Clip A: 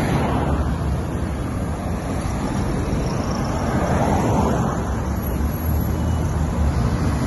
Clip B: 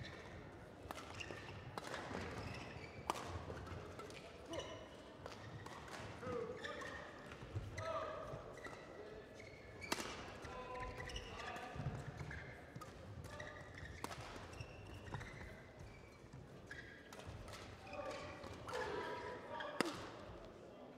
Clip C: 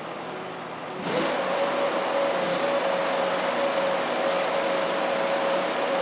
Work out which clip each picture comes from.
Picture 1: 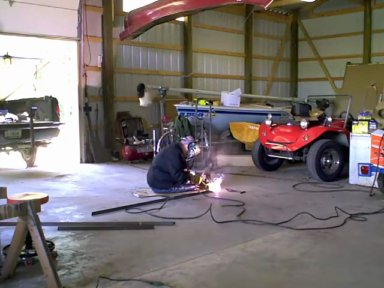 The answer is C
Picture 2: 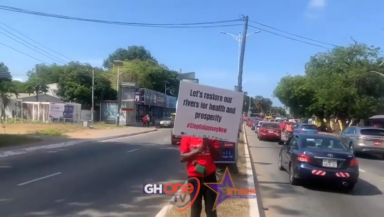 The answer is A